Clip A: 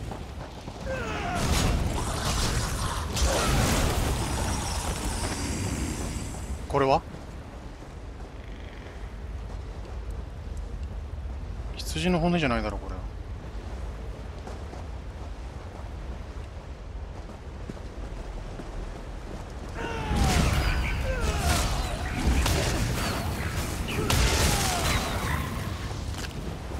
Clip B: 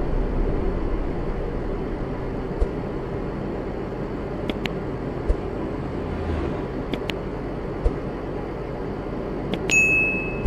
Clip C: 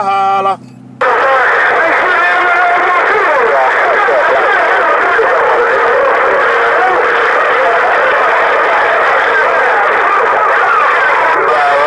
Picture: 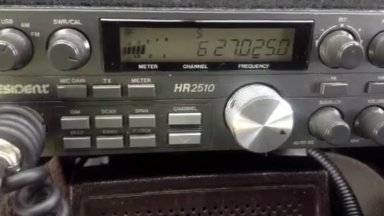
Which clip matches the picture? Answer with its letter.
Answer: C